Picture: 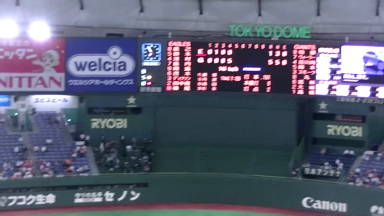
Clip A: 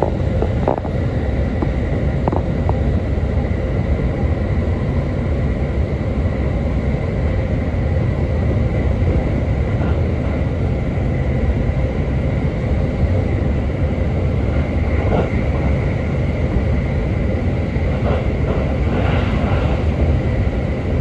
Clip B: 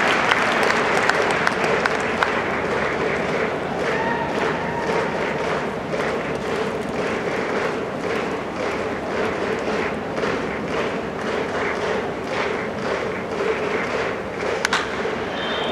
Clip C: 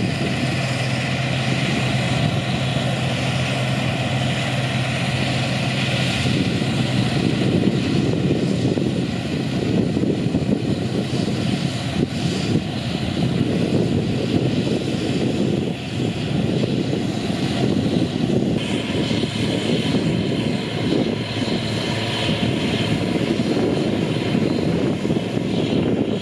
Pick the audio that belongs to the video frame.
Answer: B